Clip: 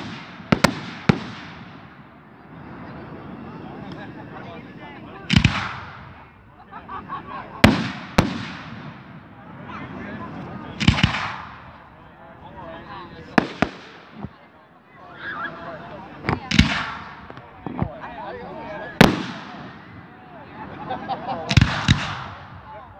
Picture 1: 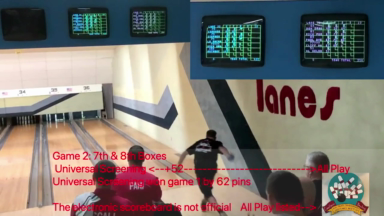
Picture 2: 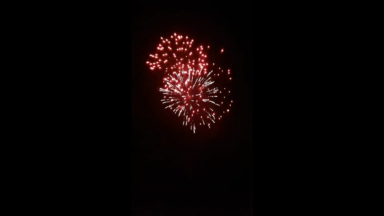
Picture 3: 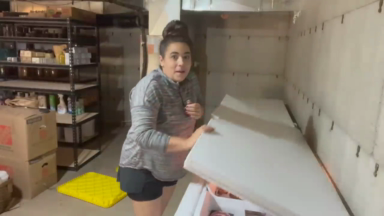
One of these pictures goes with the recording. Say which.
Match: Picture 2